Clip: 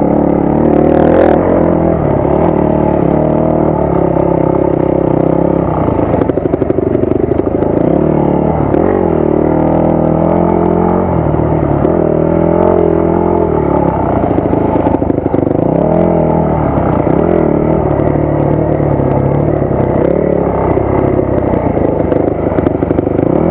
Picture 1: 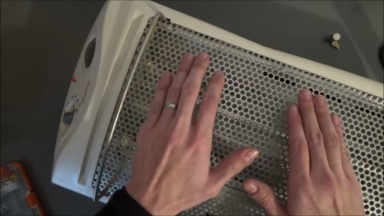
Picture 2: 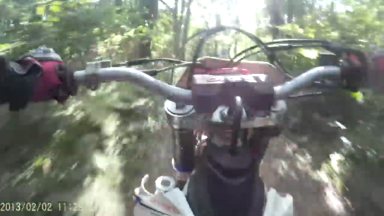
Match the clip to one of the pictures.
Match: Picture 2